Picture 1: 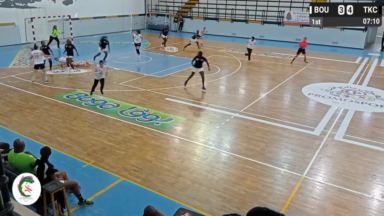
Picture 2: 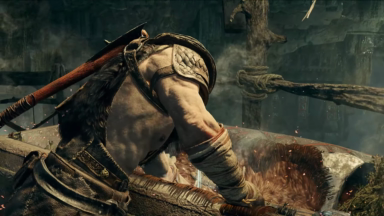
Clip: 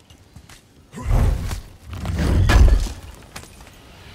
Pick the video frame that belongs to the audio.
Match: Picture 2